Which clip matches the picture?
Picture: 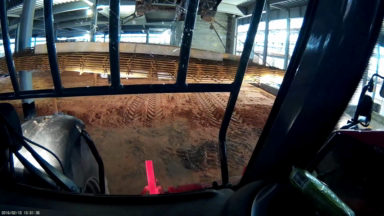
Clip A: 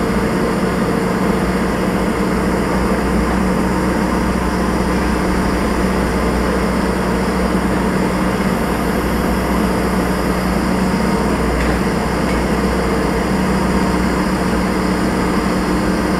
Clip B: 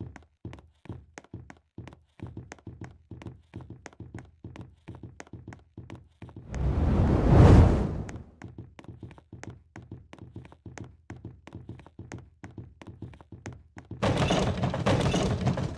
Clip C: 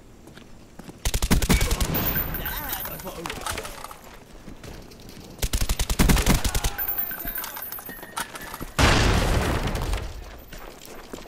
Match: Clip A